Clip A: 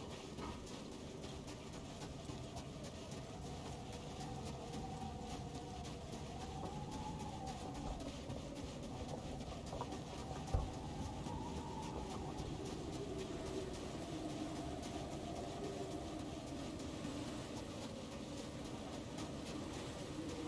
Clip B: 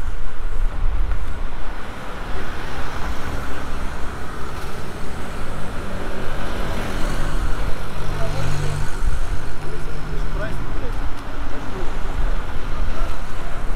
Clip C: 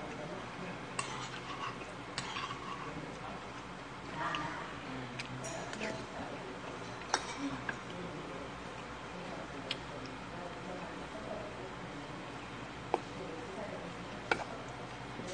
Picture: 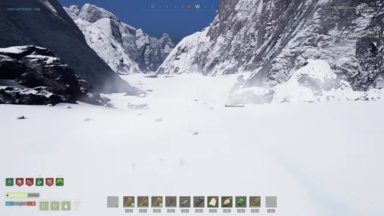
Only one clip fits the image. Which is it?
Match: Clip A